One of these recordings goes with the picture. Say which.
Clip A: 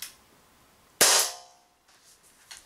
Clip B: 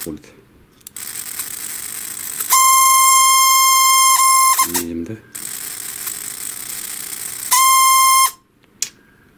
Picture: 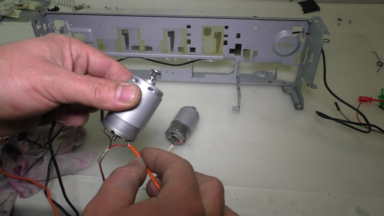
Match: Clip B